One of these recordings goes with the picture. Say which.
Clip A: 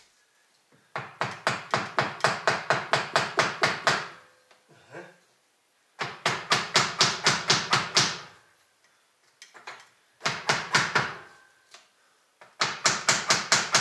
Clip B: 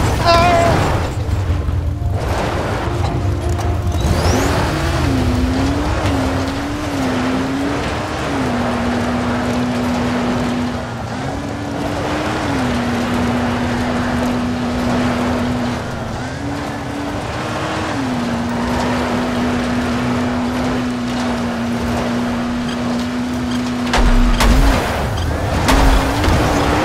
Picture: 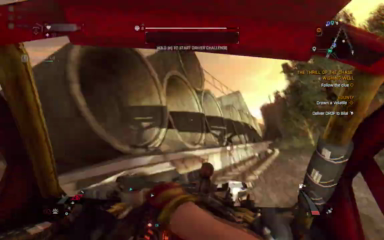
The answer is B